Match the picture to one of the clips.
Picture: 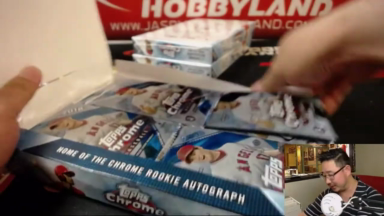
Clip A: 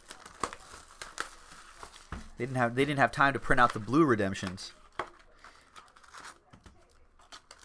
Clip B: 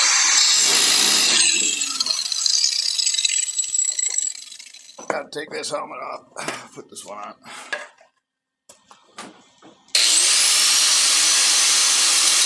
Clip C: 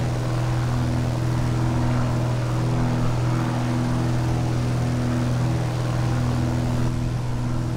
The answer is A